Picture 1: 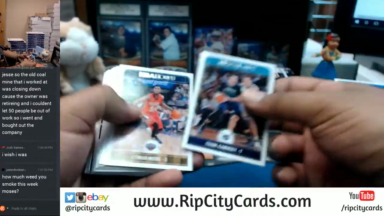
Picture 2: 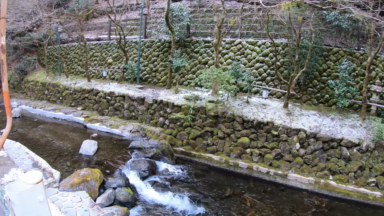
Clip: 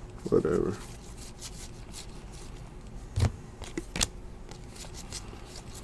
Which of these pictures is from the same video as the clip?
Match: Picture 1